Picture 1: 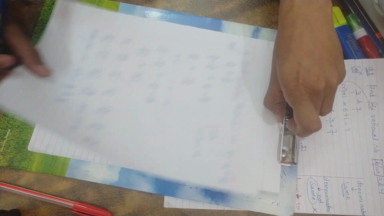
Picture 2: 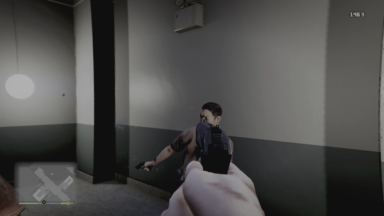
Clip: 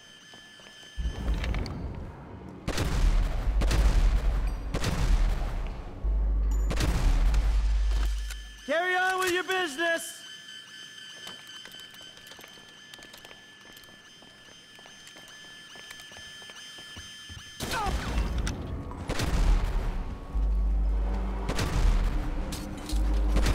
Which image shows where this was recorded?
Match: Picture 2